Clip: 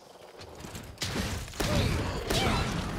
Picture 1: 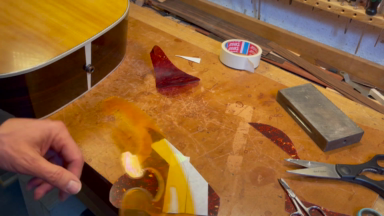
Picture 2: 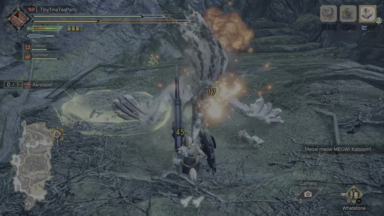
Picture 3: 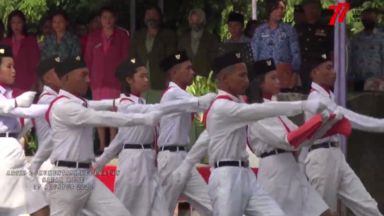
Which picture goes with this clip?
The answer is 2